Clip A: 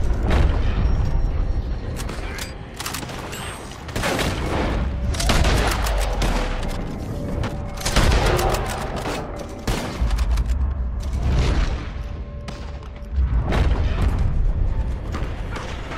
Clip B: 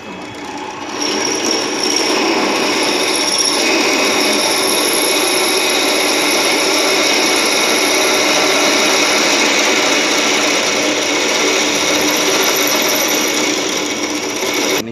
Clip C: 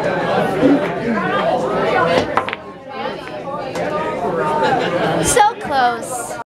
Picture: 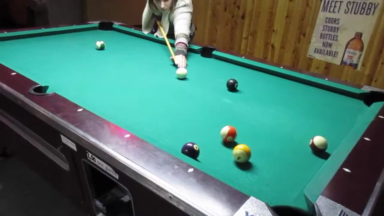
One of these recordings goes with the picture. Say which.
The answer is C